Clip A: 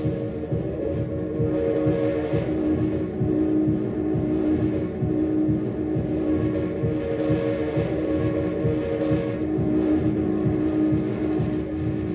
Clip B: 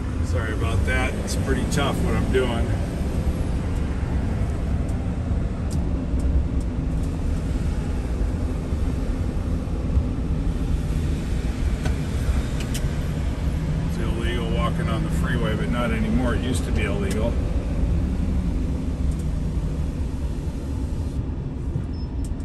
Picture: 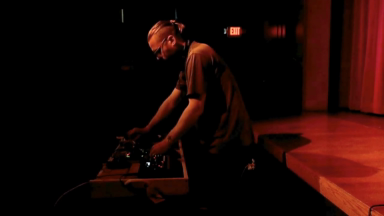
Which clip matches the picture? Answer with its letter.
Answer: A